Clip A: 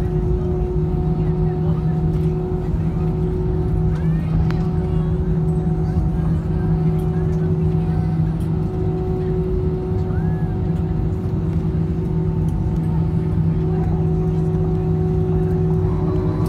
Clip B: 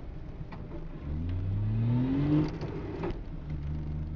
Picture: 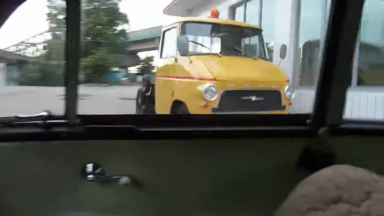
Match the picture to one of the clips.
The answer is B